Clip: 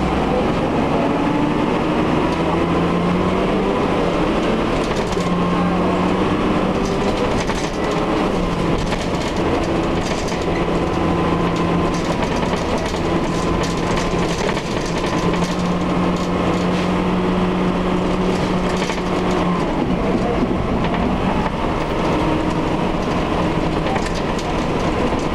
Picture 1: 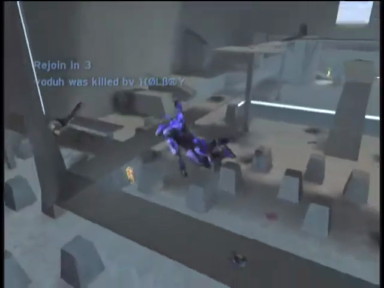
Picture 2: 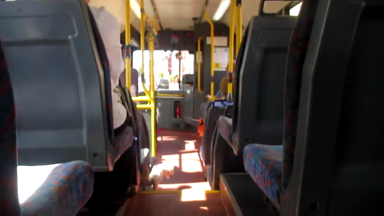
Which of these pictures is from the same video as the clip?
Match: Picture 2